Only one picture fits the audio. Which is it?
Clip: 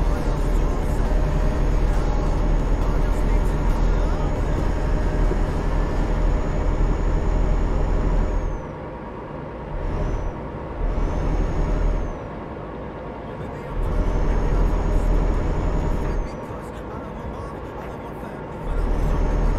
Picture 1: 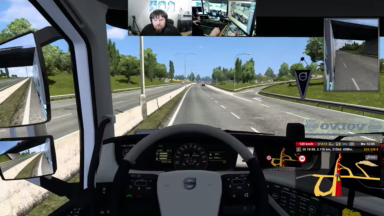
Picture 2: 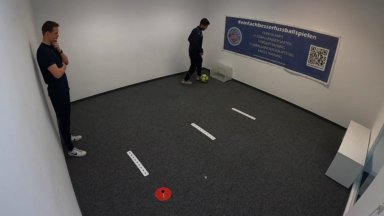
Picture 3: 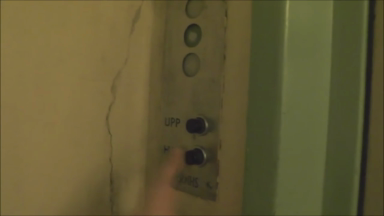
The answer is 1